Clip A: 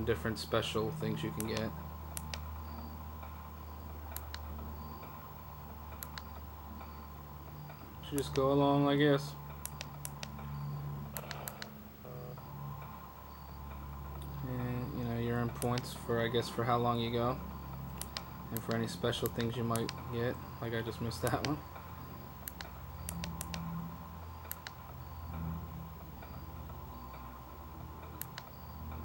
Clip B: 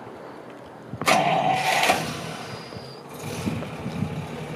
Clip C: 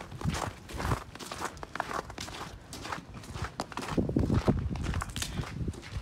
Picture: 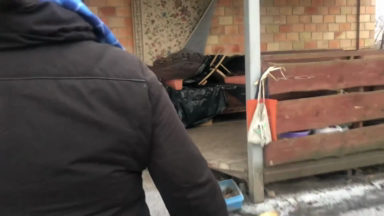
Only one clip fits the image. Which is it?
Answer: C